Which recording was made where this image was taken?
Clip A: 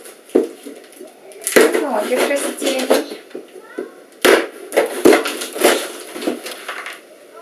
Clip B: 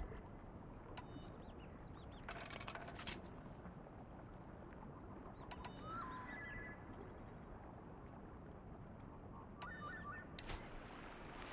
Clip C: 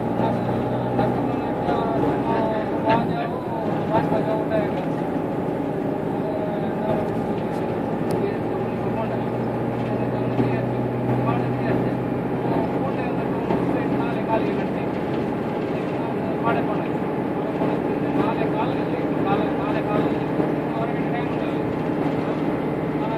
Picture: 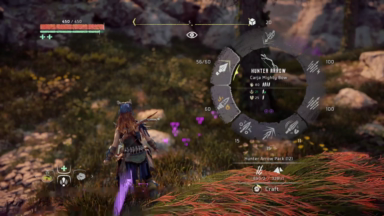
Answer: B